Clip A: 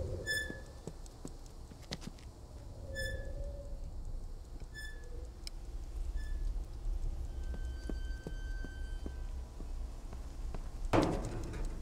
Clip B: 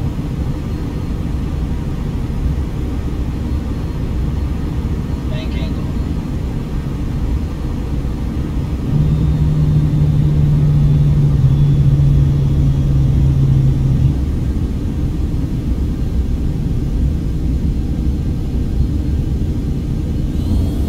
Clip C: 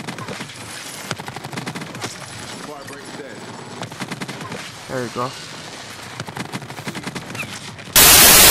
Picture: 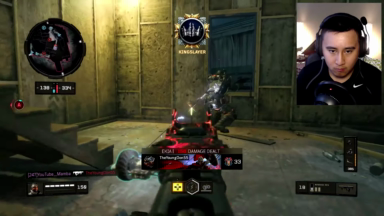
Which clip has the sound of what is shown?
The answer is C